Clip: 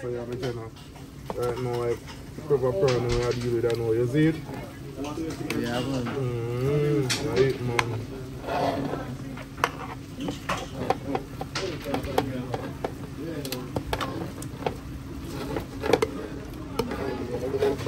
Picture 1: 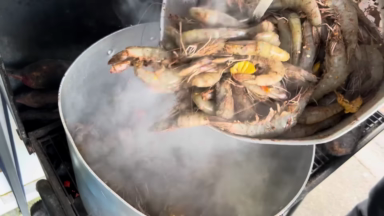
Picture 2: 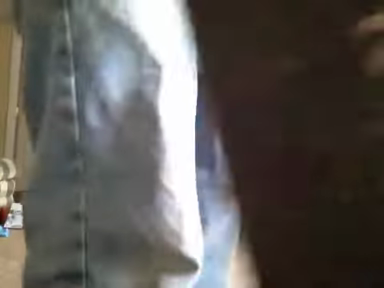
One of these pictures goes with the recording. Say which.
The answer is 1